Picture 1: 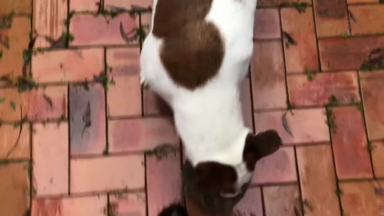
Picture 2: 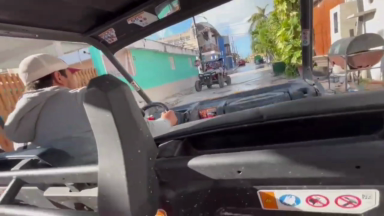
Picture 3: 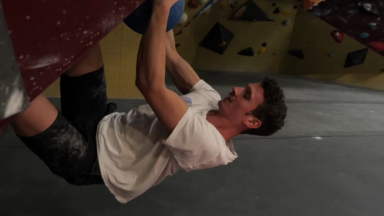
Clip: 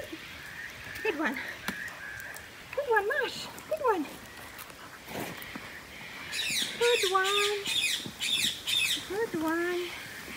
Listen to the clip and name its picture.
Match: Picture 1